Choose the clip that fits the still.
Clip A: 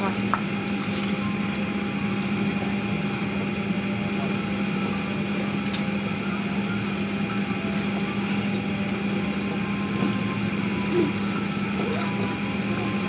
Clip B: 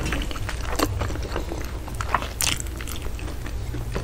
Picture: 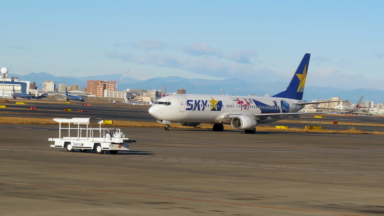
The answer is A